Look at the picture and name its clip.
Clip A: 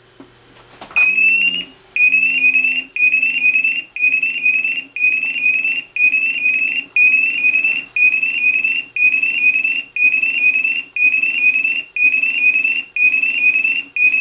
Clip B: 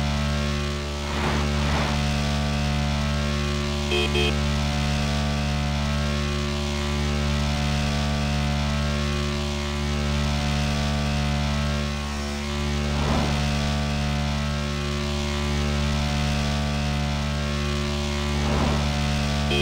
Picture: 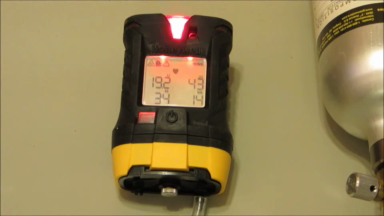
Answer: A